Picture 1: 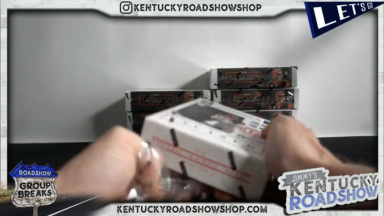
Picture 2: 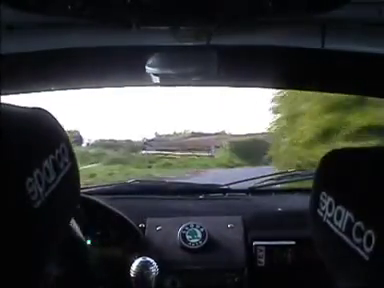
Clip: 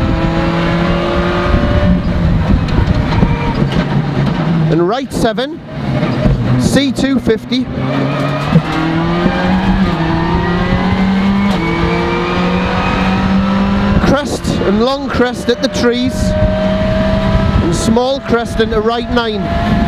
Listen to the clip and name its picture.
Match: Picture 2